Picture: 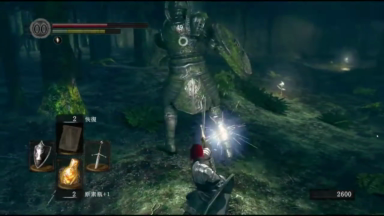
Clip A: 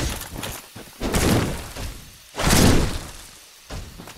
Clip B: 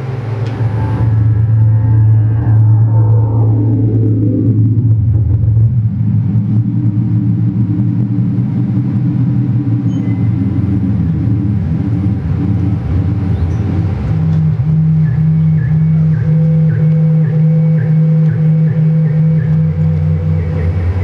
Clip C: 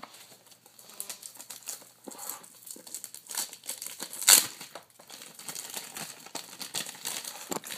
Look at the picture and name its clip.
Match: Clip A